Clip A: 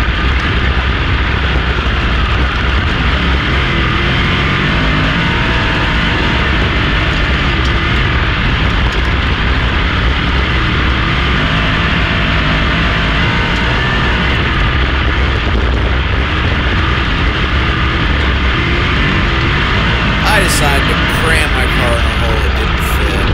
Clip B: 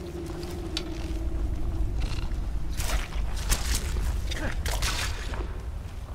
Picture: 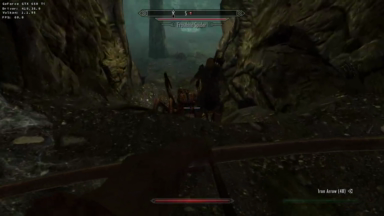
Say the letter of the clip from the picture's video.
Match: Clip B